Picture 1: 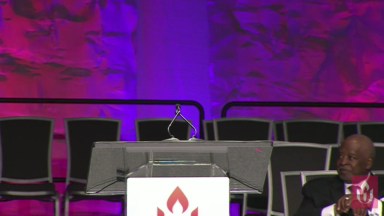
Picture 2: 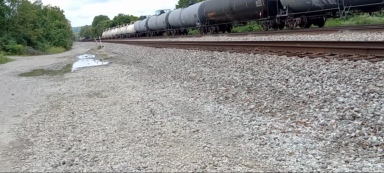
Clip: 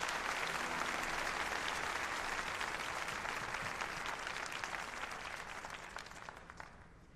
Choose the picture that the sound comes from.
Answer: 1